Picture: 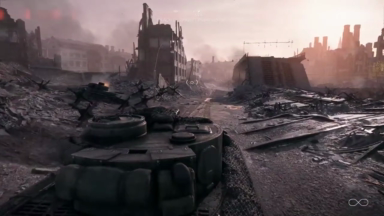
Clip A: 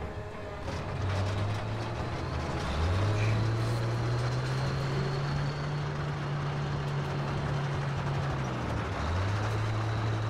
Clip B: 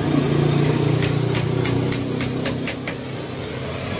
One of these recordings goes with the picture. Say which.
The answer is A